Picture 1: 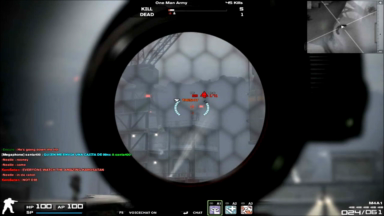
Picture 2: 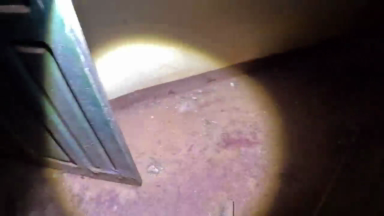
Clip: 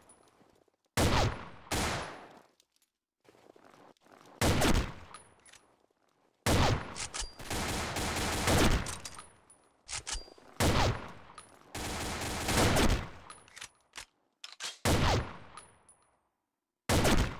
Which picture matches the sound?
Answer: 1